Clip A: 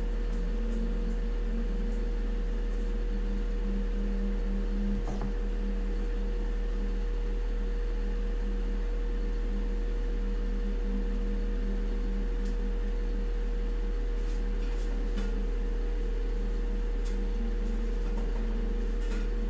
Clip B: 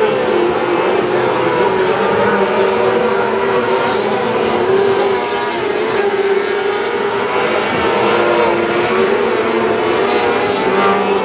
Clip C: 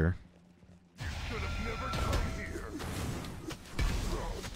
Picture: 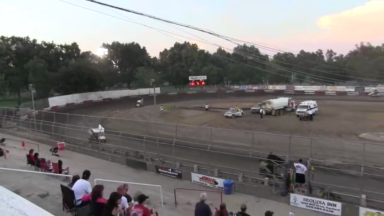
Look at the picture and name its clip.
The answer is B